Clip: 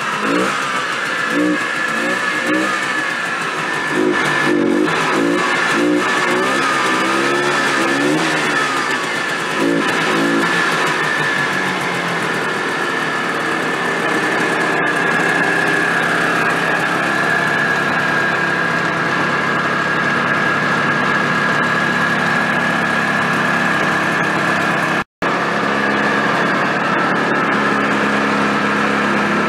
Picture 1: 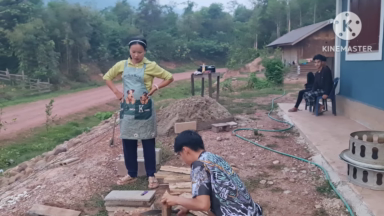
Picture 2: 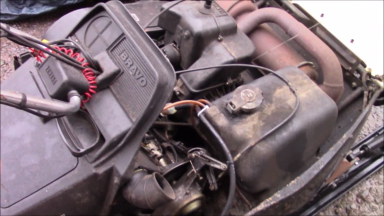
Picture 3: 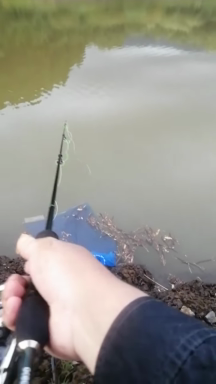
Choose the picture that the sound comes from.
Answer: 2